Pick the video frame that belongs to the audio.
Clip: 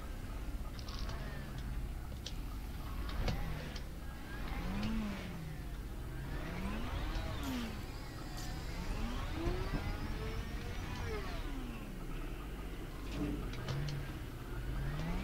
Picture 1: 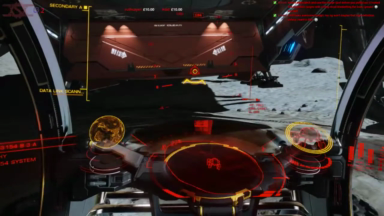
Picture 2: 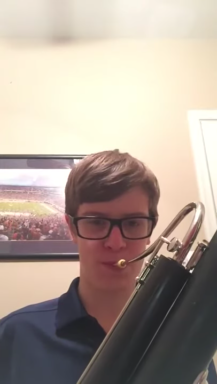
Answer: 1